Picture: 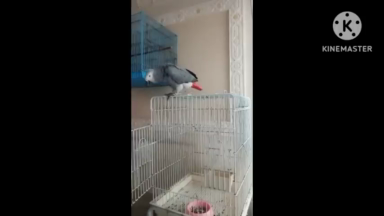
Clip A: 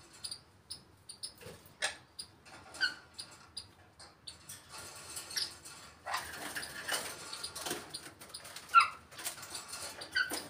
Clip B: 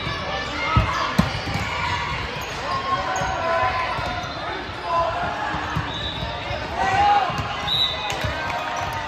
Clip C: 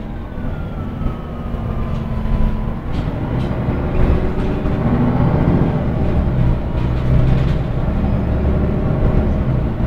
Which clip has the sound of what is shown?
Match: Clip A